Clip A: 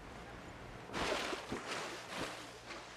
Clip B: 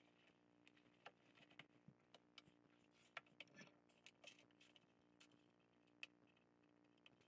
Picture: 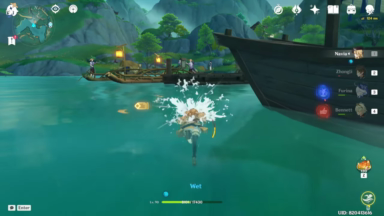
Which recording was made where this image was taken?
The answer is A